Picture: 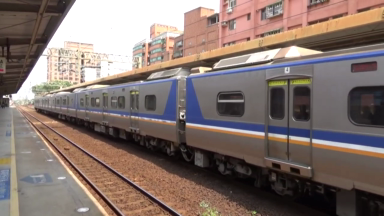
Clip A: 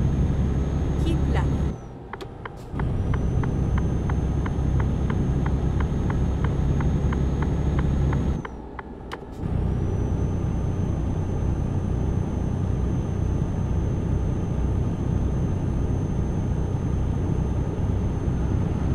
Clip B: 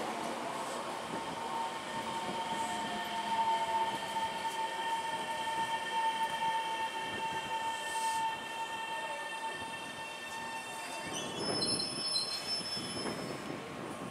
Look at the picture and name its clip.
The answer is B